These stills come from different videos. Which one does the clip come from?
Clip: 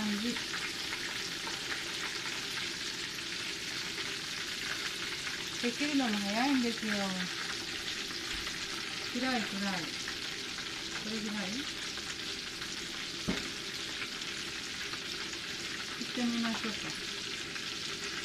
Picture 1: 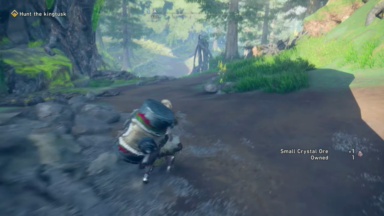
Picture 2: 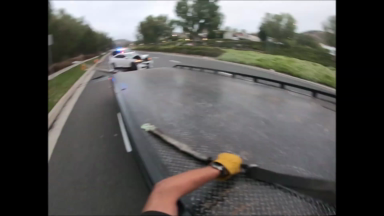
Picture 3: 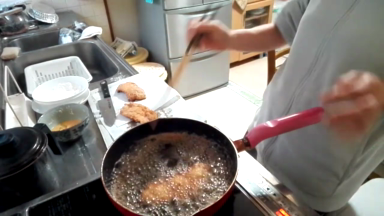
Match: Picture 3